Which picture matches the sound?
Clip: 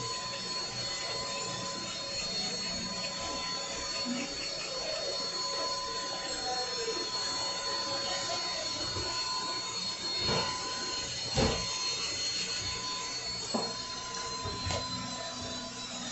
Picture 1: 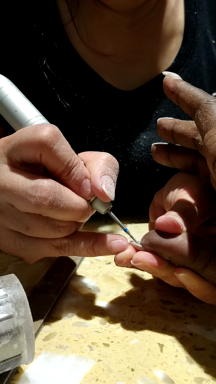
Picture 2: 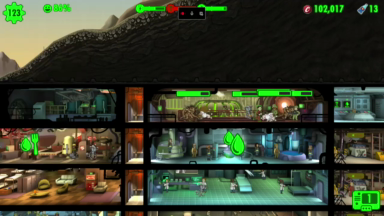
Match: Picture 1